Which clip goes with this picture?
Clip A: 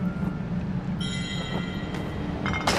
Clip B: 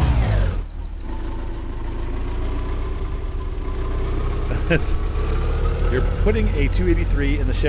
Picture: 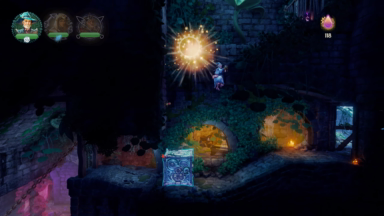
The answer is A